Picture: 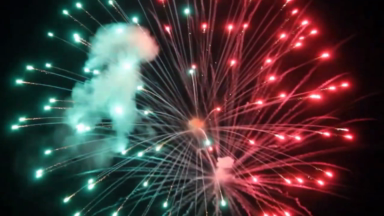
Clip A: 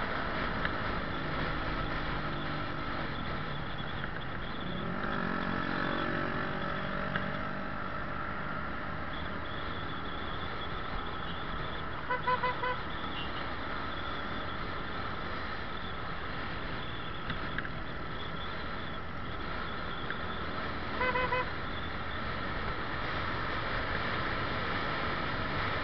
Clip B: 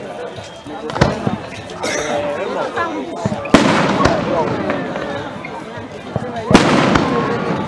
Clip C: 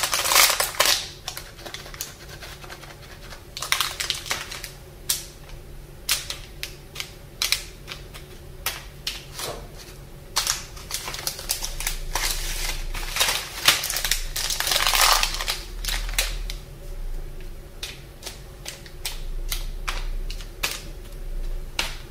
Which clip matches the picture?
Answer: B